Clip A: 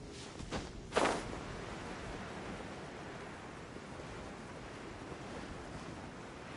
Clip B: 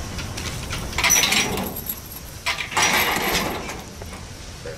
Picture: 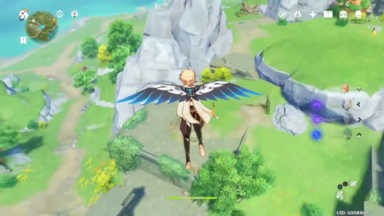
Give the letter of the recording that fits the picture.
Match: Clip A